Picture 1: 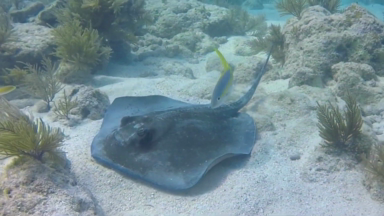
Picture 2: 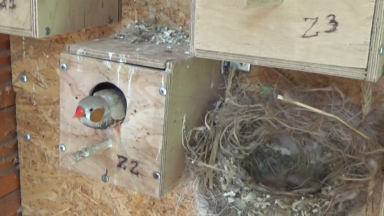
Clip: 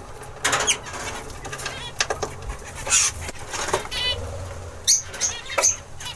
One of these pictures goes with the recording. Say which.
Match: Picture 2